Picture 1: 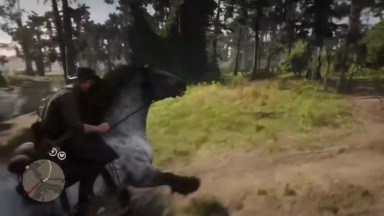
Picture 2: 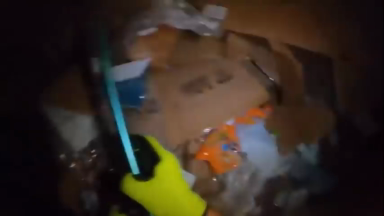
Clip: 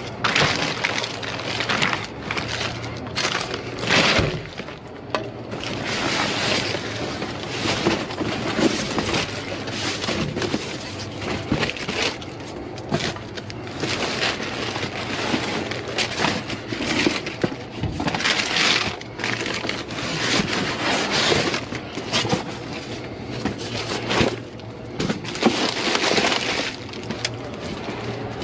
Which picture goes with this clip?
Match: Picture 2